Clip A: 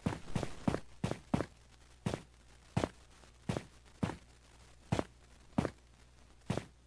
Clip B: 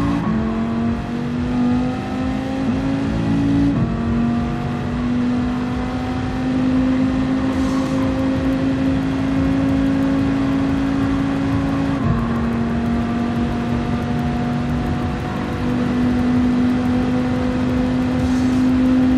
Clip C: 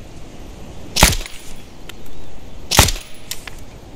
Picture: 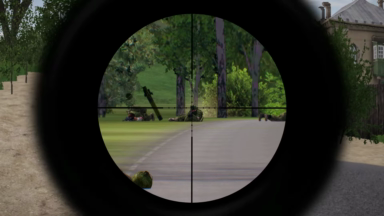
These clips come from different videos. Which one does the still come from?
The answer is C